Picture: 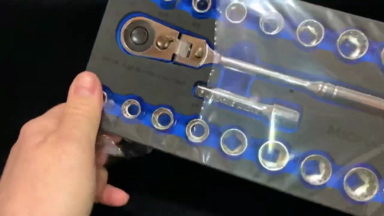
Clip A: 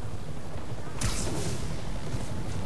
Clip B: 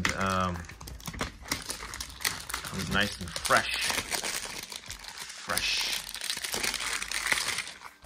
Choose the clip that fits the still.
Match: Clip B